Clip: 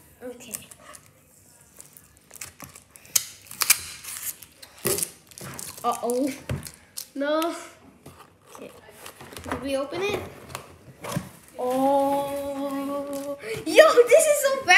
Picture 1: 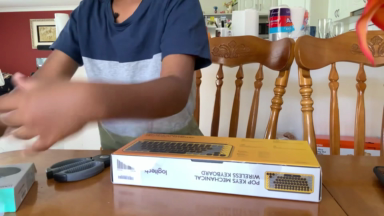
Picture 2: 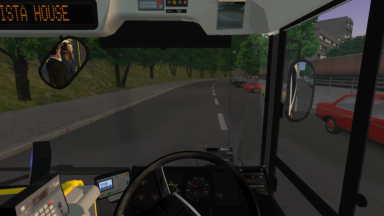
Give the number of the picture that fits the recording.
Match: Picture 1